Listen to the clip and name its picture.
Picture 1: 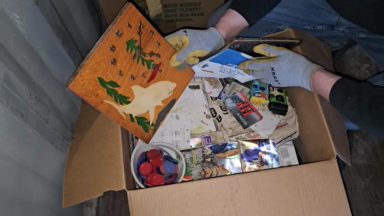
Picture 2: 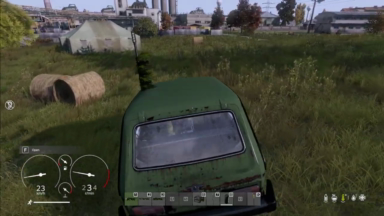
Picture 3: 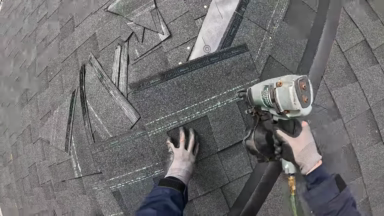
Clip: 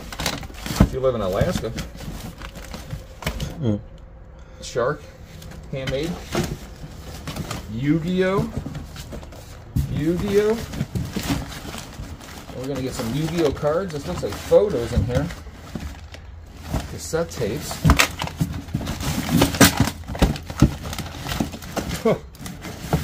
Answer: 1